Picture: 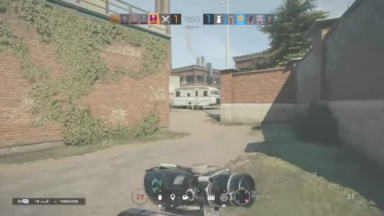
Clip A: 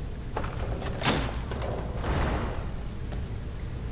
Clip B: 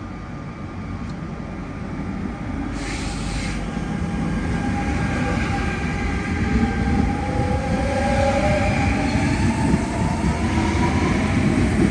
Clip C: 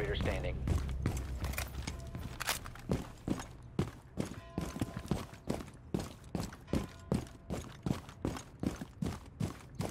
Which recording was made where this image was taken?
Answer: C